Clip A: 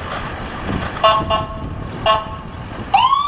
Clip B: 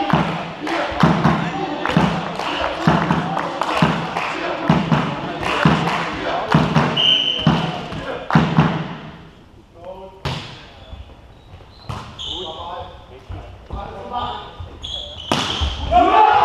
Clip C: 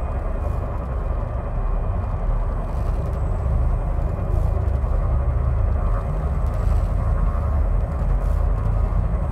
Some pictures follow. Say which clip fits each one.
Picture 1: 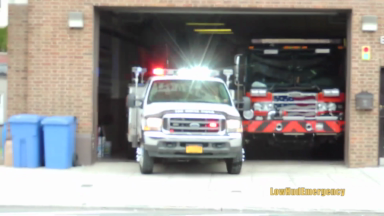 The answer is A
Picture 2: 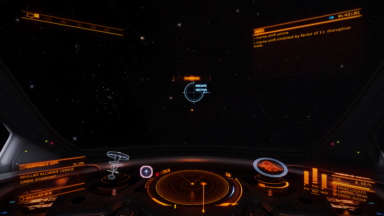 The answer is C